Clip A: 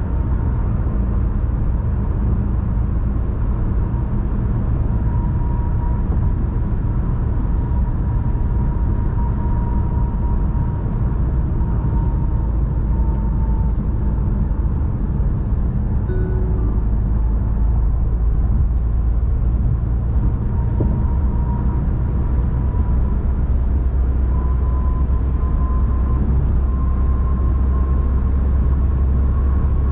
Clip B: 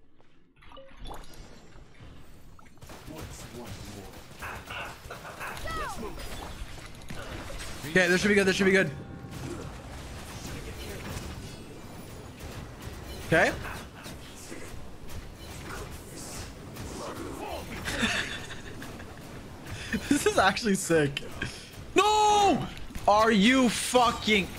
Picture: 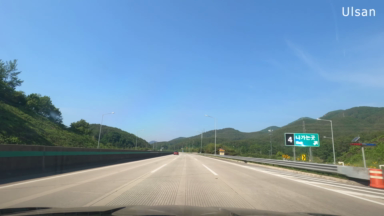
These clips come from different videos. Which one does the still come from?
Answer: A